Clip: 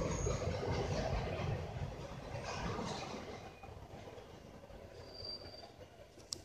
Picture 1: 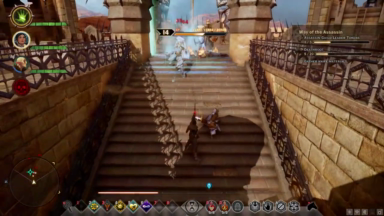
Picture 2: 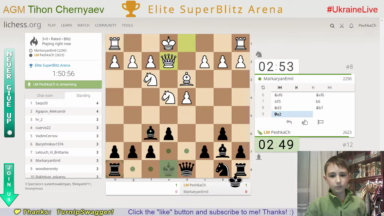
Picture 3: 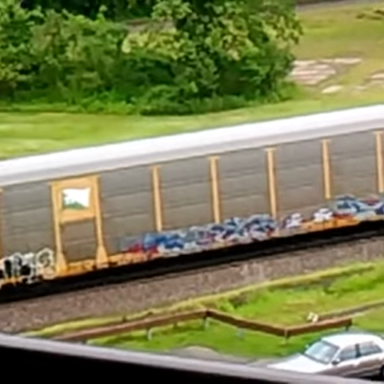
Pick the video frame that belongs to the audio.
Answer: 3